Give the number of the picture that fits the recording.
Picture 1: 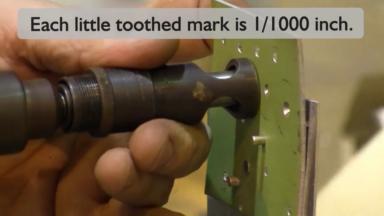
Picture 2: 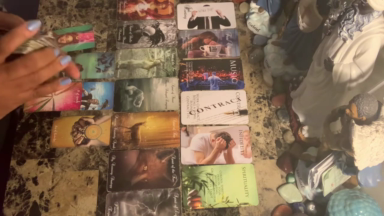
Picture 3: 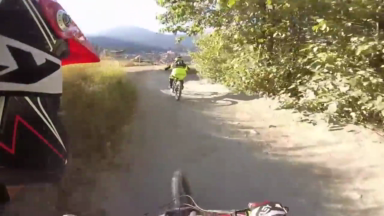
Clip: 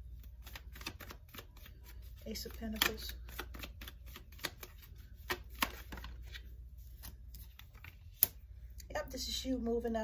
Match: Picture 2